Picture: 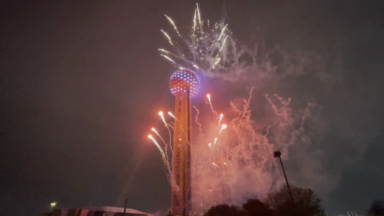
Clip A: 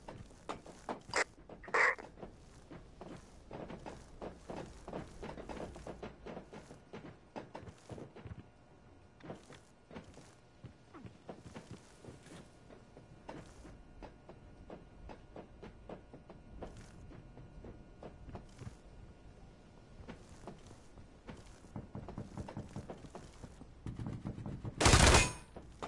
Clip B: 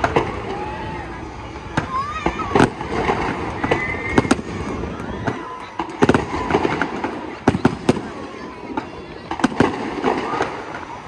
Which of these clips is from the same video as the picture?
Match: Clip B